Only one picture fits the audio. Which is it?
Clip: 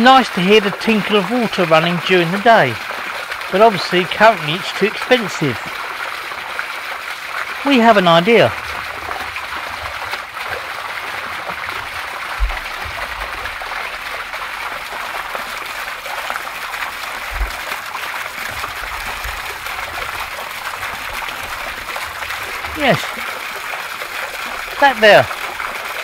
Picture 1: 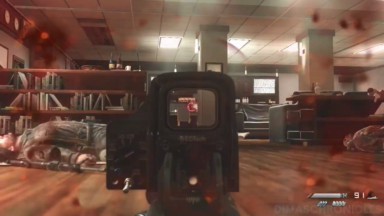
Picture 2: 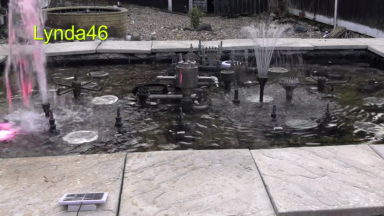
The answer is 2